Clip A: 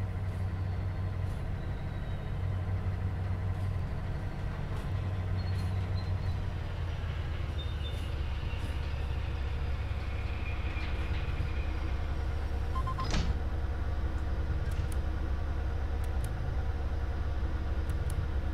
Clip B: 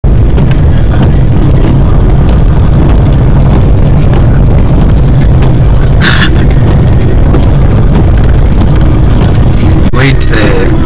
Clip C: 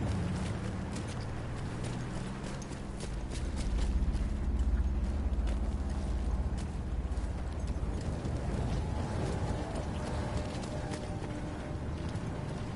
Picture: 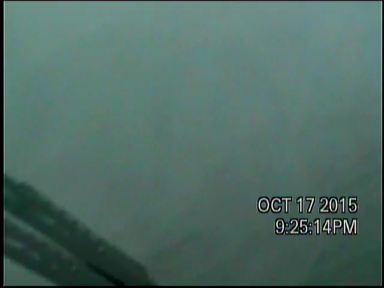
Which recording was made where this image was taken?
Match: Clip B